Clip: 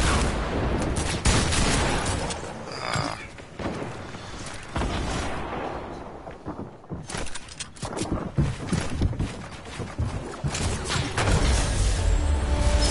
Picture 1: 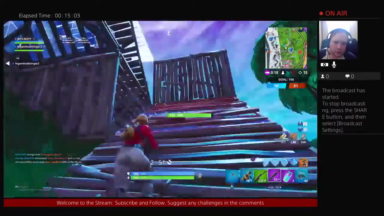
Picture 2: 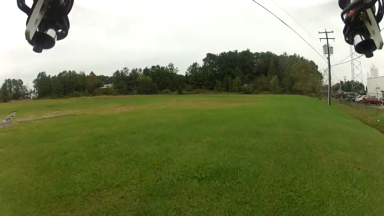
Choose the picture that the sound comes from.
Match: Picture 1